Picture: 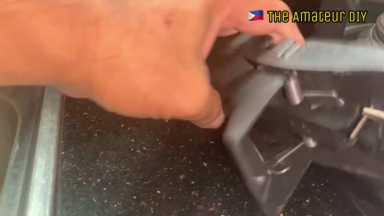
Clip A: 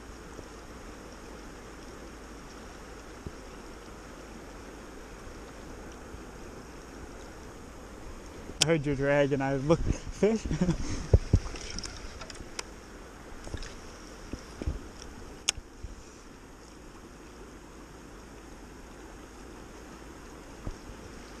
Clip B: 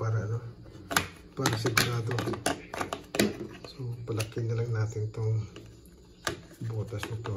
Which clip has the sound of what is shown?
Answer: B